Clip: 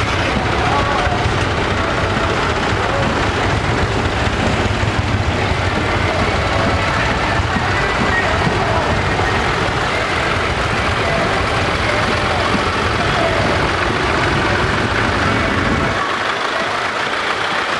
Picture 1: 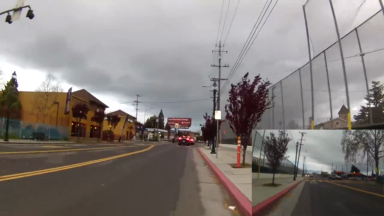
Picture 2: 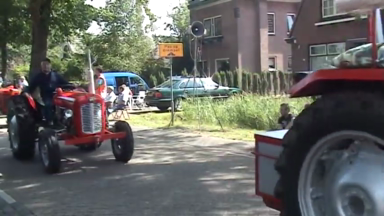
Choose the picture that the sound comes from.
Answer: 2